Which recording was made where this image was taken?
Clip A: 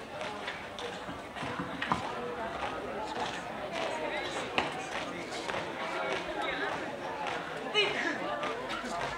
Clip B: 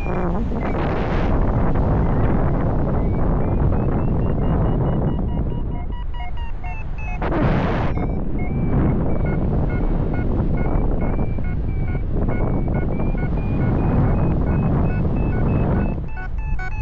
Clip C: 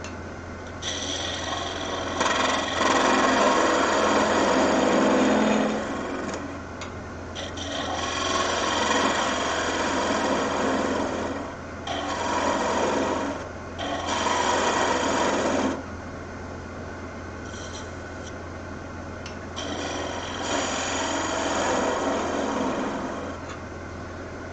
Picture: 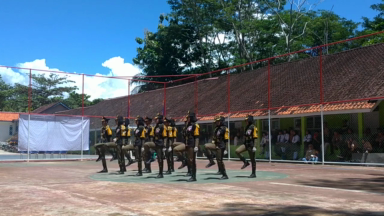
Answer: A